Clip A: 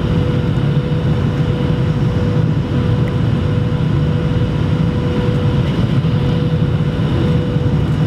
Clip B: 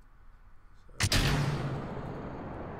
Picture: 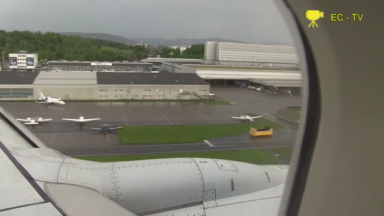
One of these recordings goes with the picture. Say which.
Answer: A